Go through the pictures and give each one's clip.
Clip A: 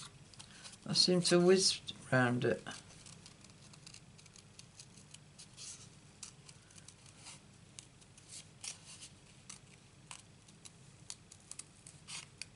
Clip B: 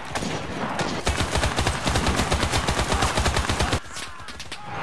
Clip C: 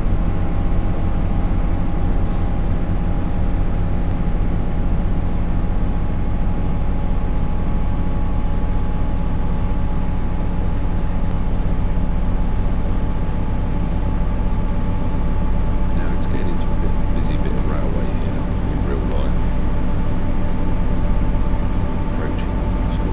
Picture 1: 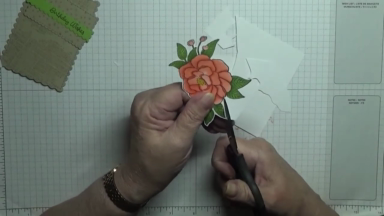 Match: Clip A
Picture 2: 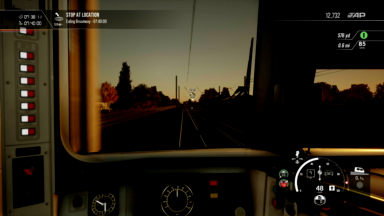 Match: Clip C